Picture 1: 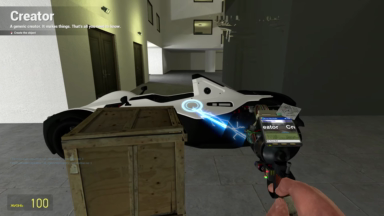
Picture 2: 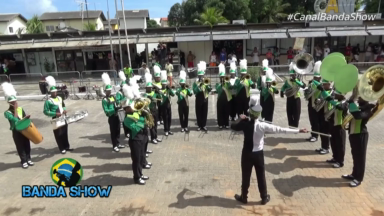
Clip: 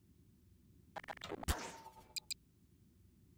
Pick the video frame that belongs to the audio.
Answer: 1